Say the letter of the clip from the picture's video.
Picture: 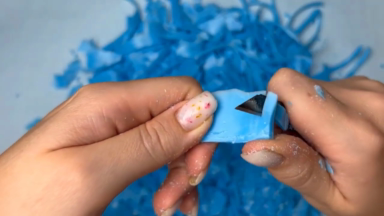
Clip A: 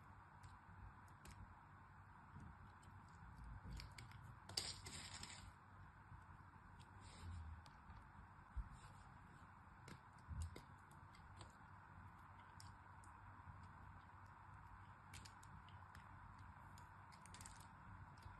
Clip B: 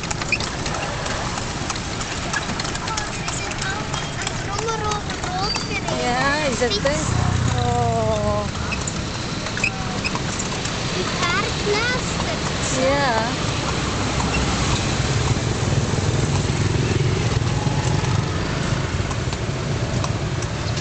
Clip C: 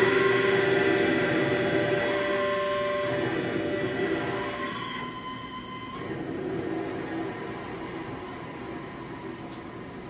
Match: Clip A